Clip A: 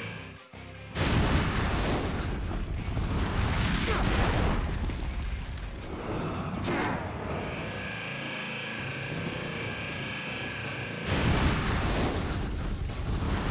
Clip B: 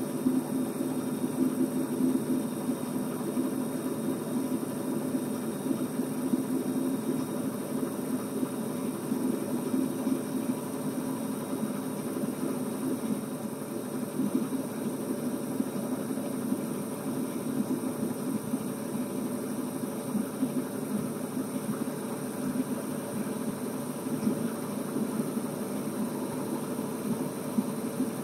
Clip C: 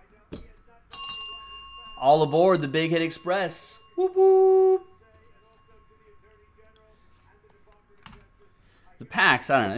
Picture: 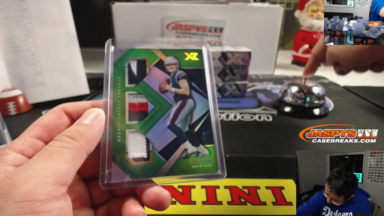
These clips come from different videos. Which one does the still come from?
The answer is C